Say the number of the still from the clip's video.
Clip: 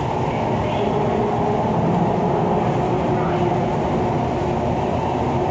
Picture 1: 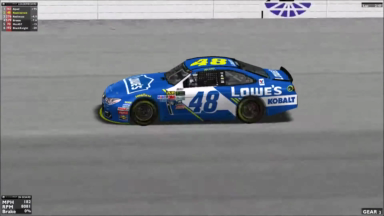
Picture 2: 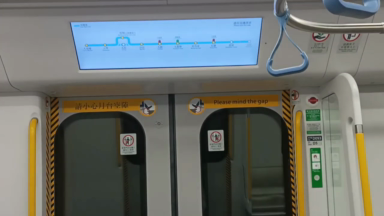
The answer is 2